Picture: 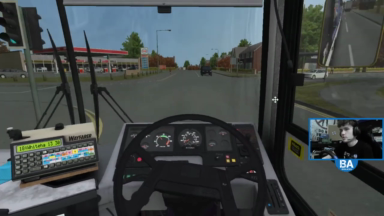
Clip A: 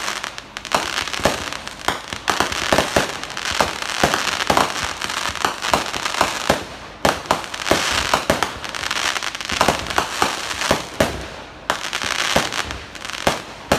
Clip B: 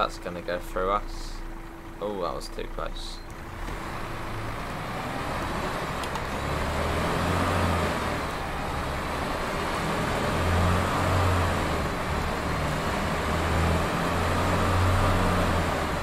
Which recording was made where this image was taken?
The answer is B